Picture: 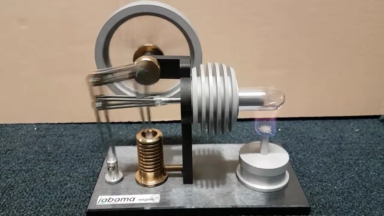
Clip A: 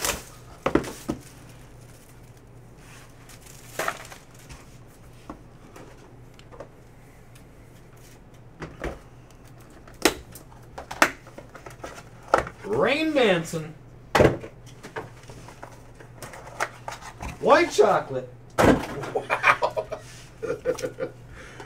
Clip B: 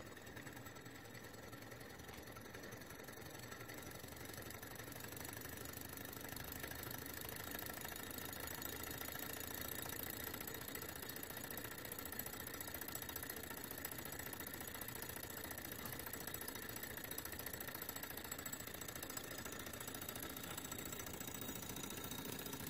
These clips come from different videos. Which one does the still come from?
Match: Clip B